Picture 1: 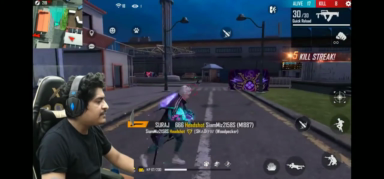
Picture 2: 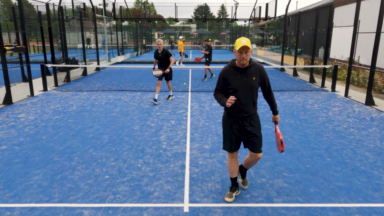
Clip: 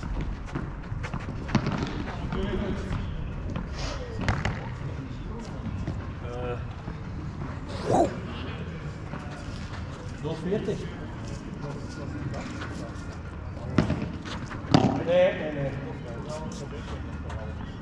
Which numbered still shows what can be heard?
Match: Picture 2